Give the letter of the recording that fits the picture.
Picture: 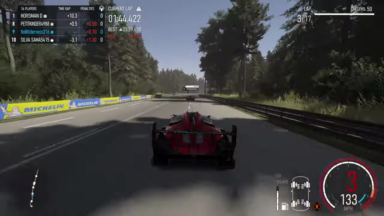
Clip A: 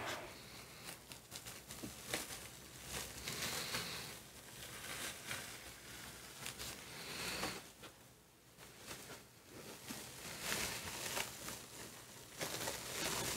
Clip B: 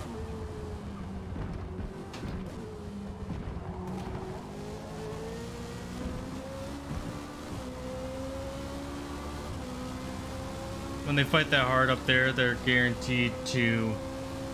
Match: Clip B